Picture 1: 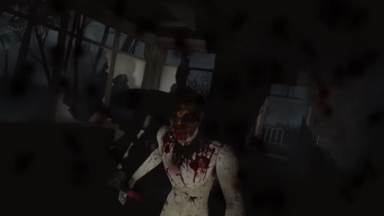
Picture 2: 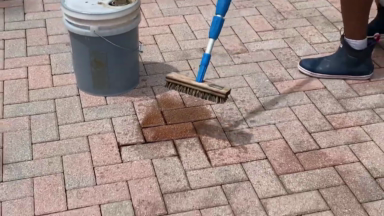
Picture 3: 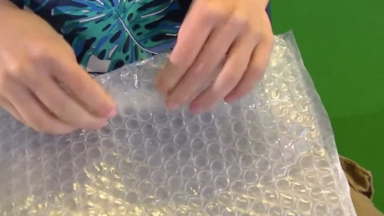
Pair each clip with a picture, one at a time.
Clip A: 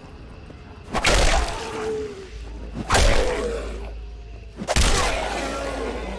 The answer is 1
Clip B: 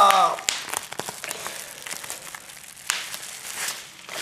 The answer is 3